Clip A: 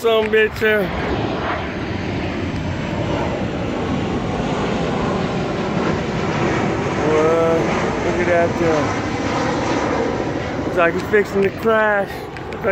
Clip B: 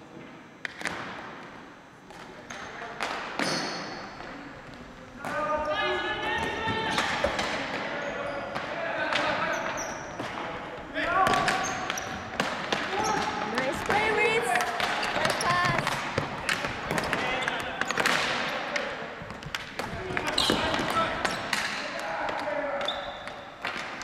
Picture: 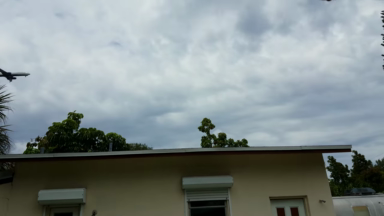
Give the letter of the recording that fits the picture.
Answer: A